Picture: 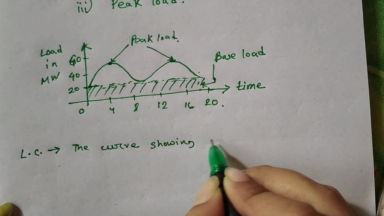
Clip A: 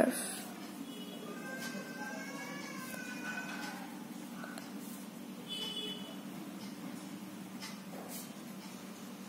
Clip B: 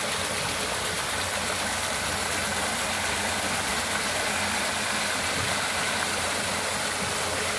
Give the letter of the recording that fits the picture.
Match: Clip A